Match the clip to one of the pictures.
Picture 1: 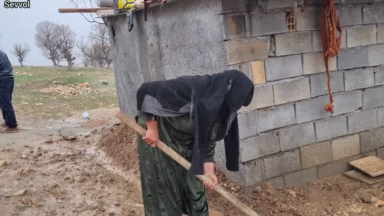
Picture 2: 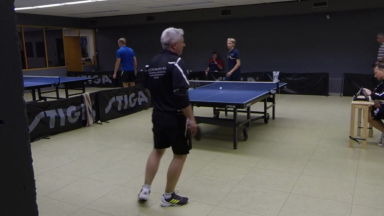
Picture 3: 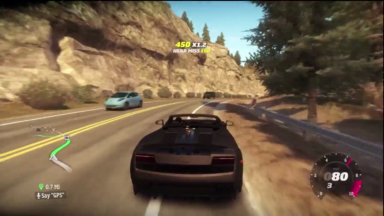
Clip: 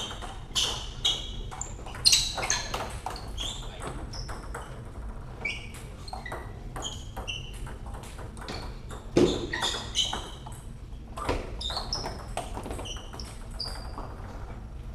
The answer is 2